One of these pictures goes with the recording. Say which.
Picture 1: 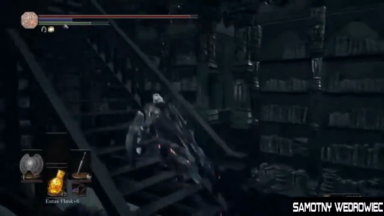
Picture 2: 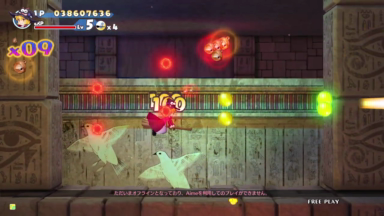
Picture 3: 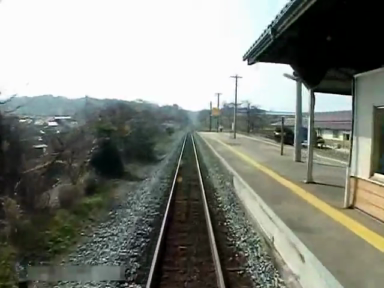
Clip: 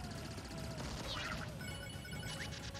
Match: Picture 2